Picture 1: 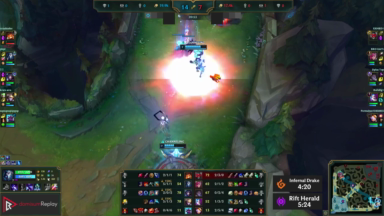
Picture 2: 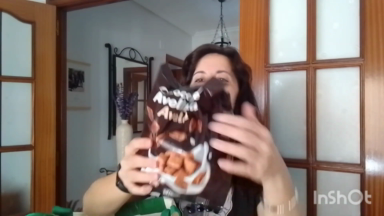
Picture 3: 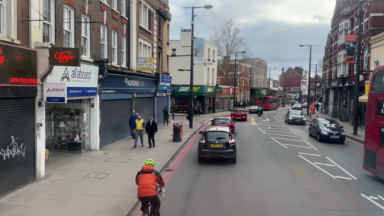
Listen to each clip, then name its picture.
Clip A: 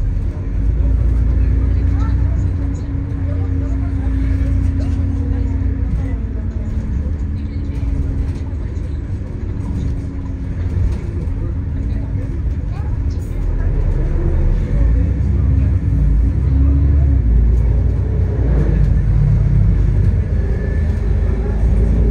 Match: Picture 3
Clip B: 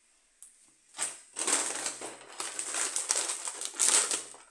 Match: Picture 2